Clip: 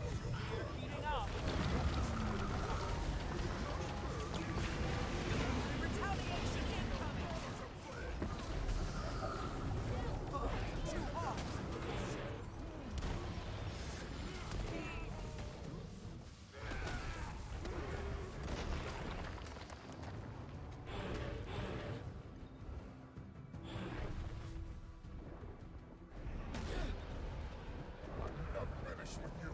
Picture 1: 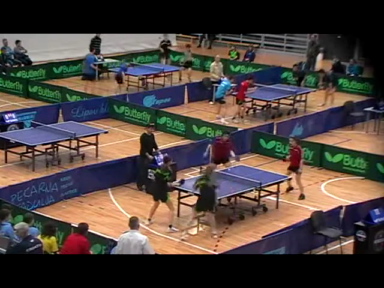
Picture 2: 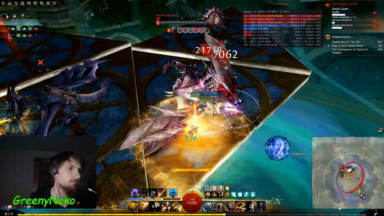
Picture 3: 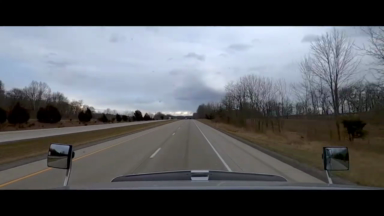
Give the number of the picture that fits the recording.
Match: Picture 2